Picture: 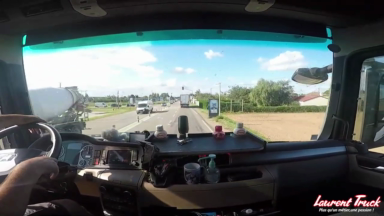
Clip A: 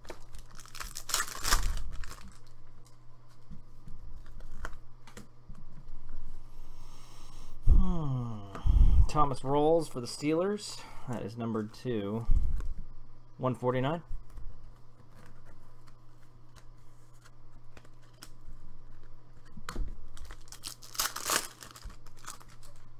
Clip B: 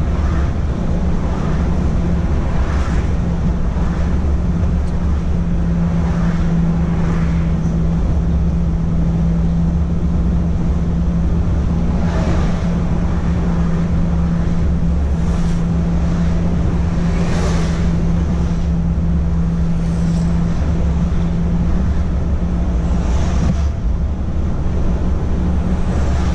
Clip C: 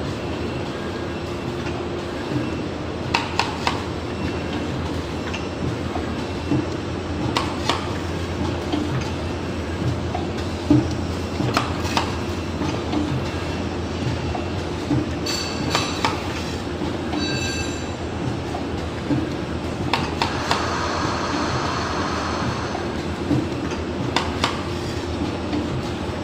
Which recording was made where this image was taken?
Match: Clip B